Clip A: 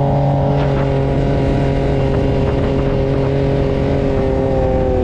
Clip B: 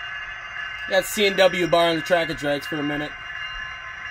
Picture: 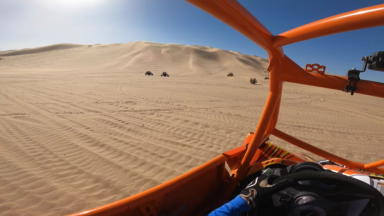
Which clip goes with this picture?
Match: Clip A